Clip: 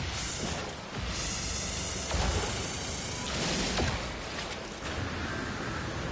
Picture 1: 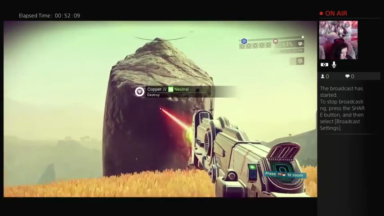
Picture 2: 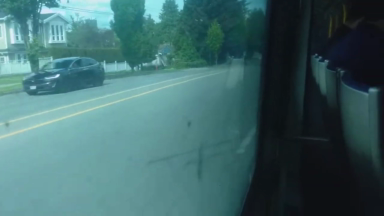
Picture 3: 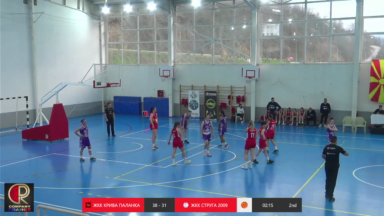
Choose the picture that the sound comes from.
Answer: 1